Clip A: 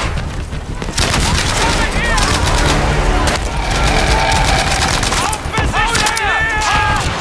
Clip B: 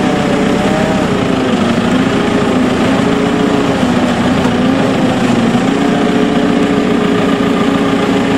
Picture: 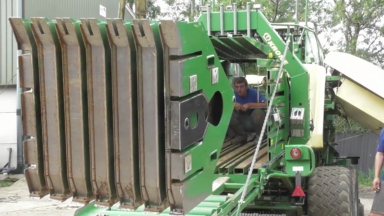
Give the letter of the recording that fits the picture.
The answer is B